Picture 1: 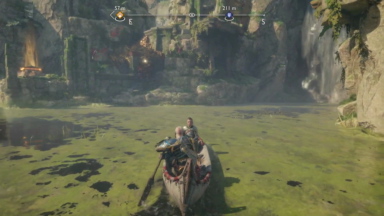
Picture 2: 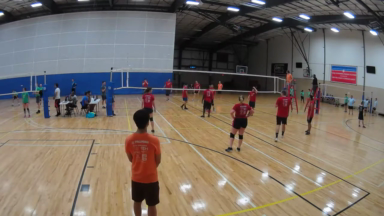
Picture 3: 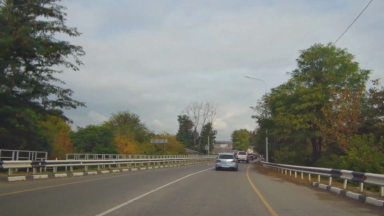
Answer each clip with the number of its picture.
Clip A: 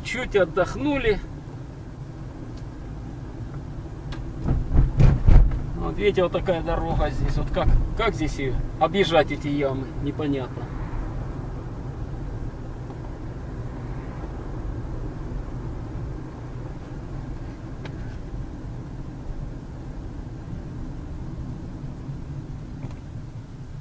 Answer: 3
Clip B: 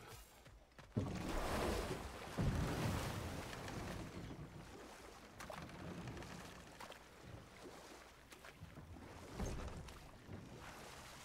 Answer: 1